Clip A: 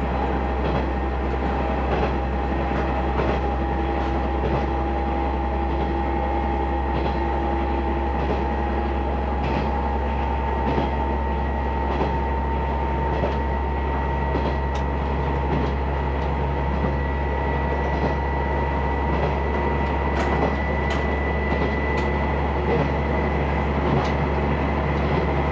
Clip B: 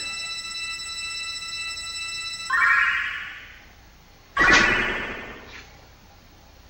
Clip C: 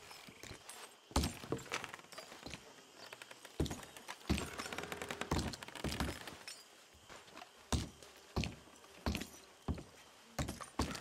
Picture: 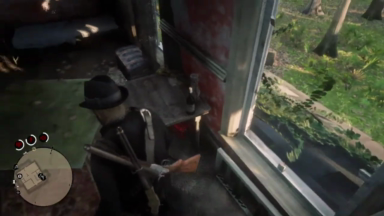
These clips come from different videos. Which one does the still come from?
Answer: C